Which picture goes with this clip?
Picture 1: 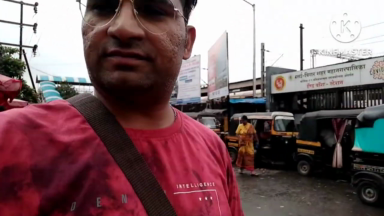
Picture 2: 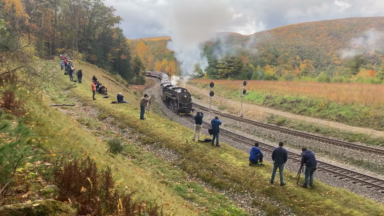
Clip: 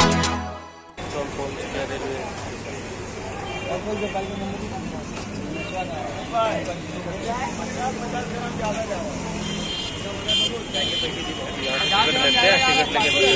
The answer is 1